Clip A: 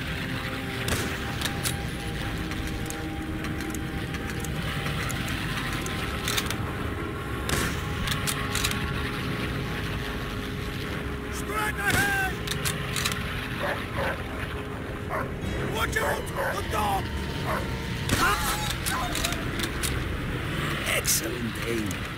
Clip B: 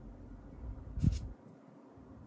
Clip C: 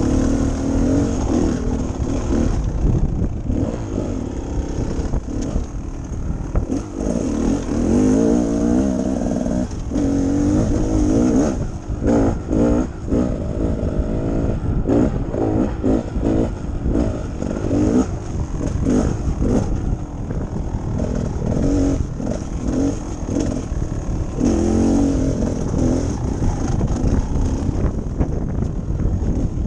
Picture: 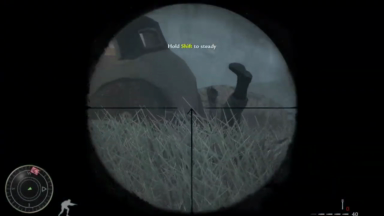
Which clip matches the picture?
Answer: A